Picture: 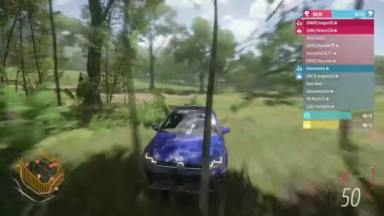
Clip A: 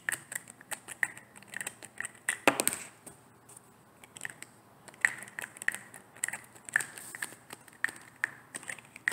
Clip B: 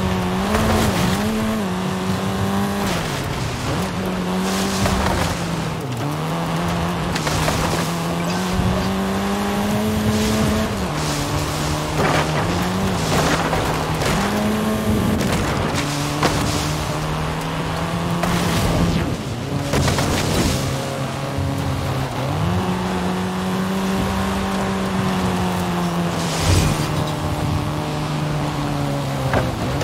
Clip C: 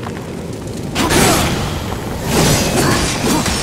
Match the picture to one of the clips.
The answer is B